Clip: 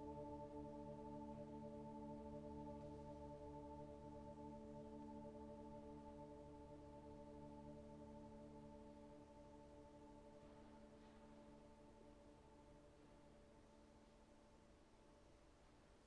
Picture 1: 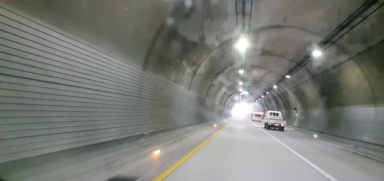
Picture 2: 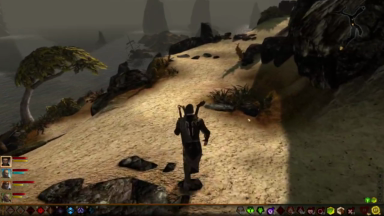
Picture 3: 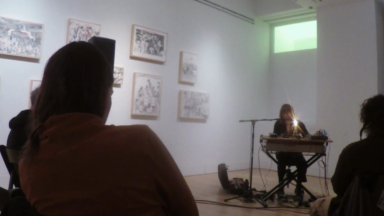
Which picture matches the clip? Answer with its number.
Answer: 3